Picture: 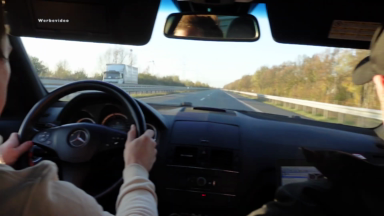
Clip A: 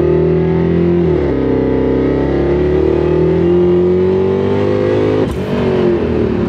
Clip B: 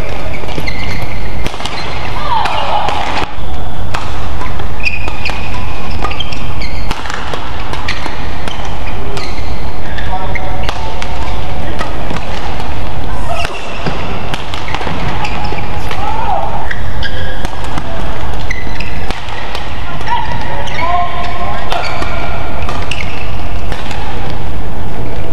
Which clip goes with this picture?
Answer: A